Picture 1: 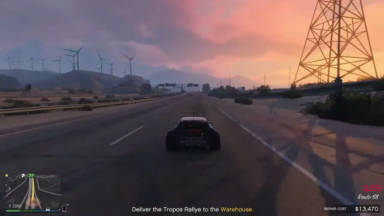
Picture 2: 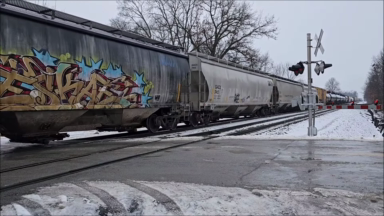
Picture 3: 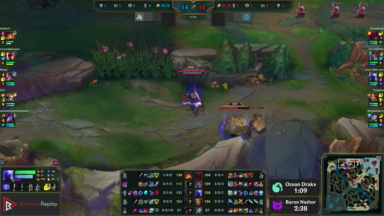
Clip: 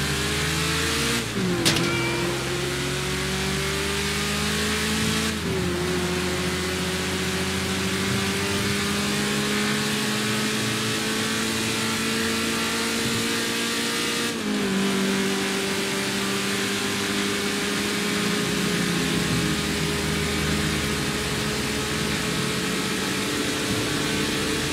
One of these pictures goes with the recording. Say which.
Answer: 1